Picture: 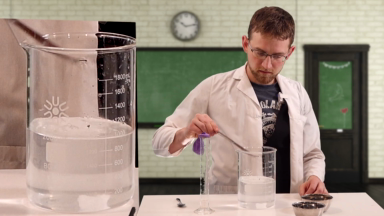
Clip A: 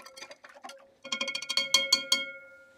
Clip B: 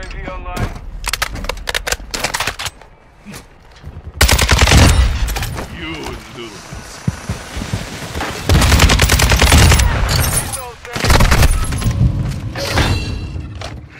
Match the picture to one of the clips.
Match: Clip A